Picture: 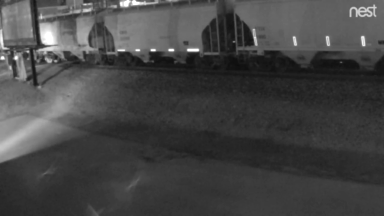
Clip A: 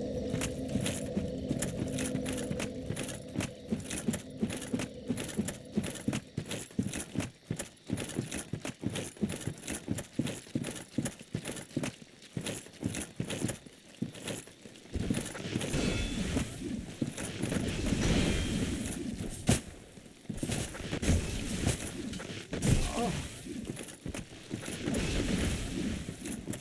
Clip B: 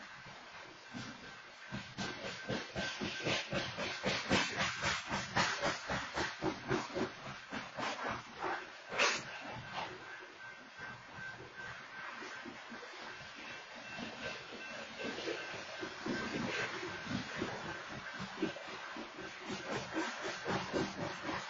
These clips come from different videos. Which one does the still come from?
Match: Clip B